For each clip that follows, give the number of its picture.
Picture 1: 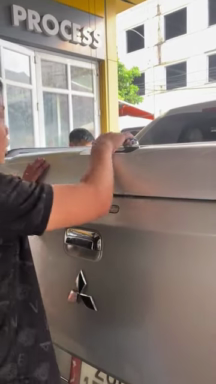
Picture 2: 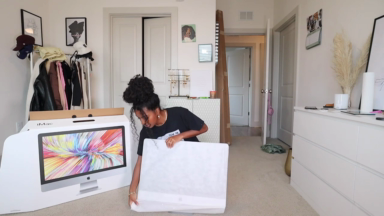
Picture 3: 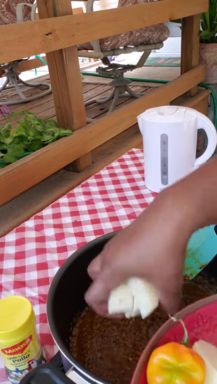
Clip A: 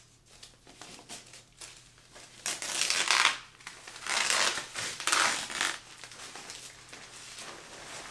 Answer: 2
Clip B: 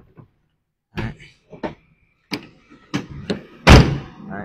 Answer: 1